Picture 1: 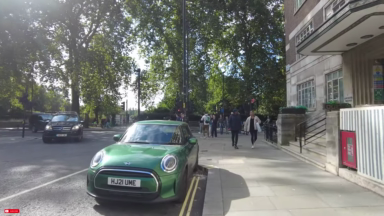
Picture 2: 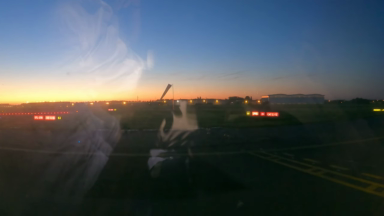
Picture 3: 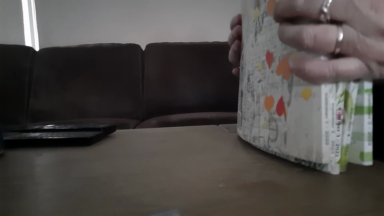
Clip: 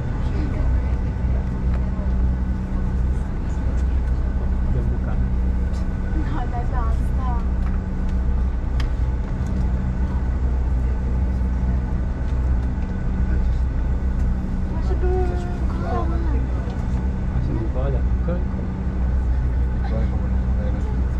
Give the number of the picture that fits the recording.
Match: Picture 2